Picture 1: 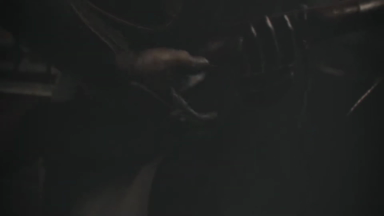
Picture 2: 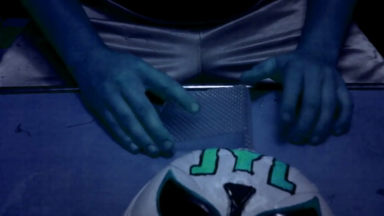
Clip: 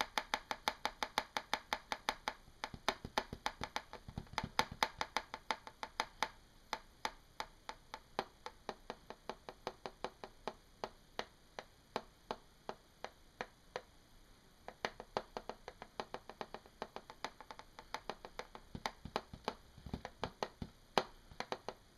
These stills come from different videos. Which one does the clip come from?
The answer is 2